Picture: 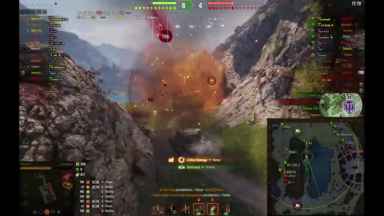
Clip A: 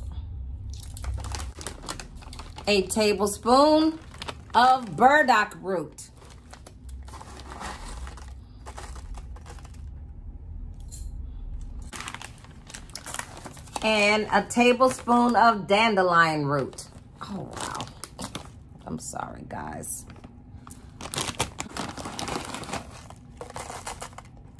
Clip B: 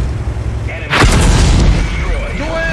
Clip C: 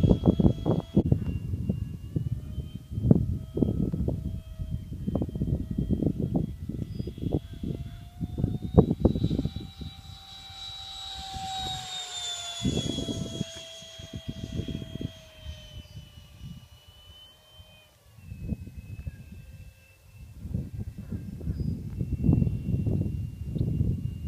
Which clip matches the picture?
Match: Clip B